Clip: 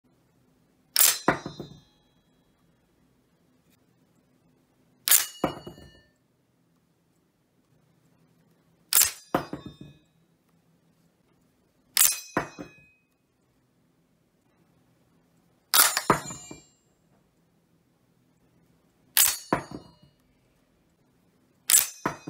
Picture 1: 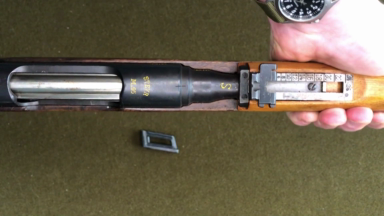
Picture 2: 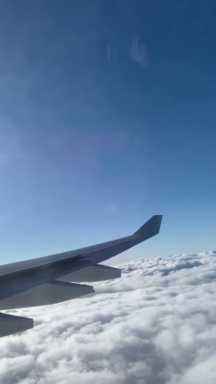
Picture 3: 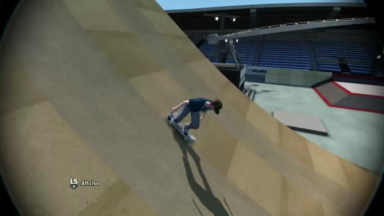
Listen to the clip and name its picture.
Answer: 1